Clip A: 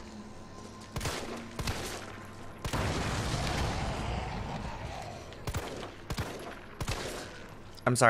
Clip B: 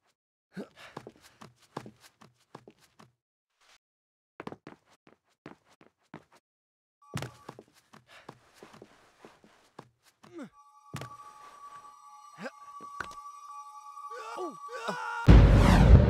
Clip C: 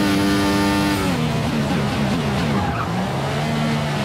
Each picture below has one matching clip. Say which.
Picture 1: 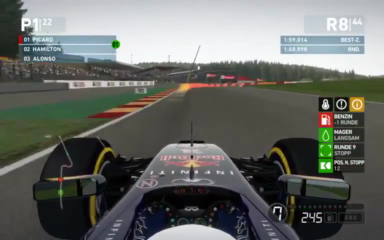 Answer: C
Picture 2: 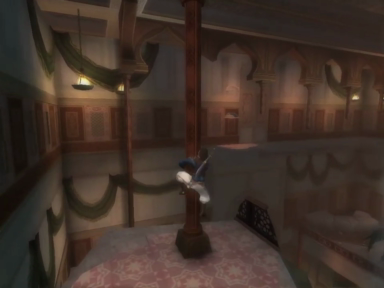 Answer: B